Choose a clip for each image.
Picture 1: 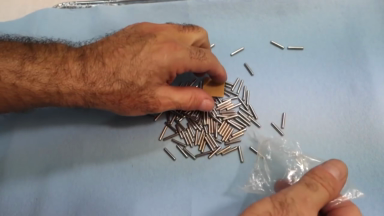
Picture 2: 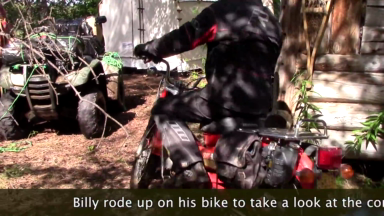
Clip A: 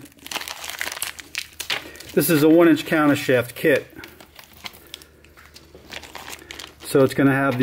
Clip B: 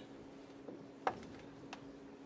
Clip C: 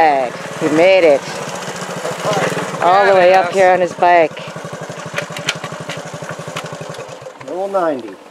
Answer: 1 A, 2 C